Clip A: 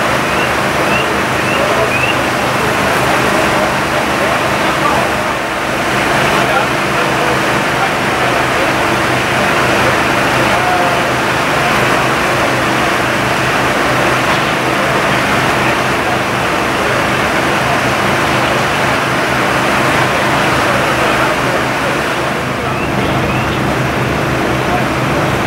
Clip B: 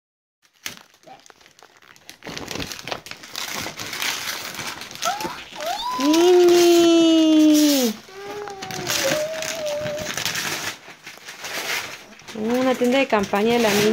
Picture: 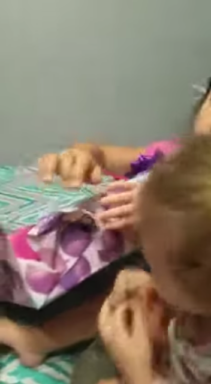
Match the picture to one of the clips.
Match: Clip B